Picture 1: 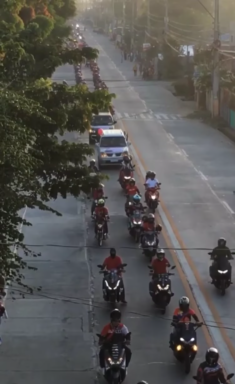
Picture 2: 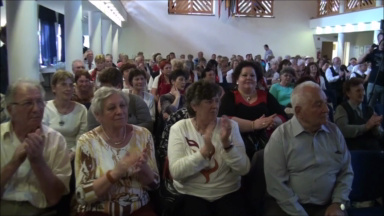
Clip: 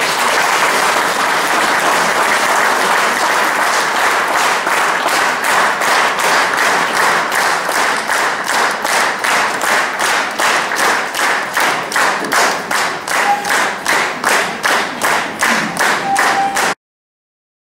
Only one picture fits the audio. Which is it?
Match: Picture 2